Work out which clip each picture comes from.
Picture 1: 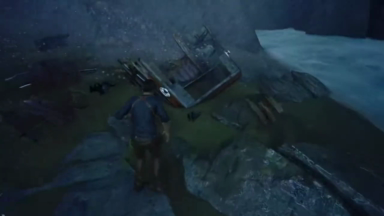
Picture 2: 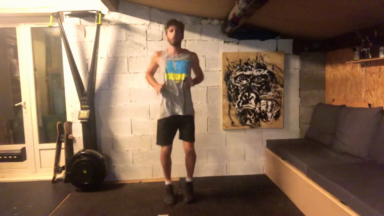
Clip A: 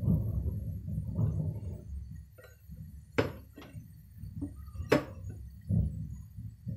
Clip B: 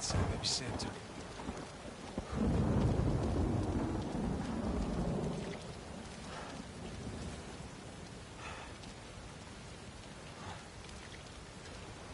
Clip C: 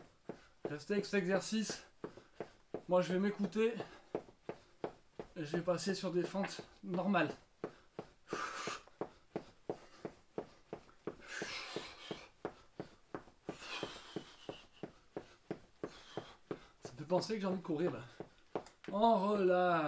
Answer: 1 B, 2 C